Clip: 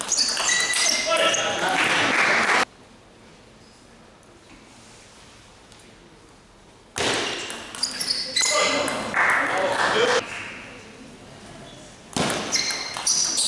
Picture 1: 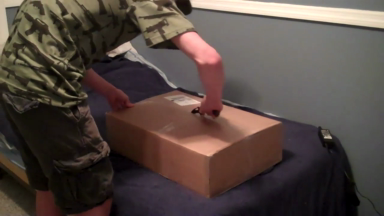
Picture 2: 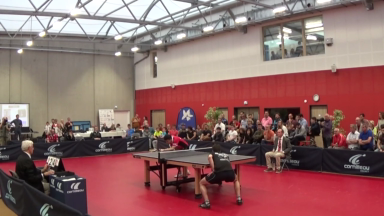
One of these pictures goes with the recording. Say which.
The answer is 2